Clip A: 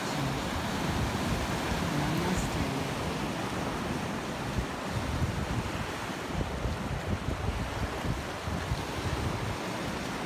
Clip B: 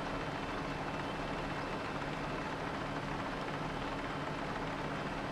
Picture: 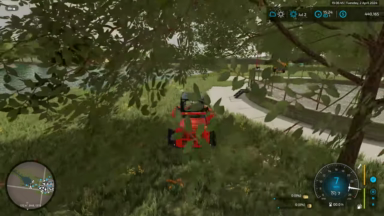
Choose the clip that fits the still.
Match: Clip B